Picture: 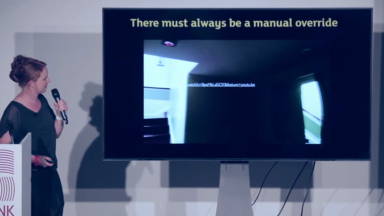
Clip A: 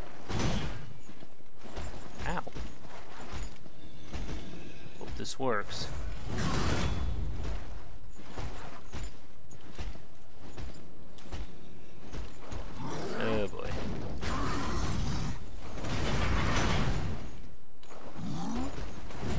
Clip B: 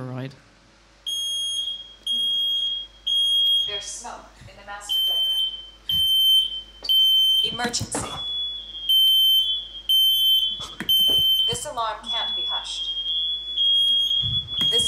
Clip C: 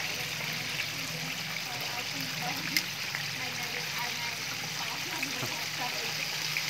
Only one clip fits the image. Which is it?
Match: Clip B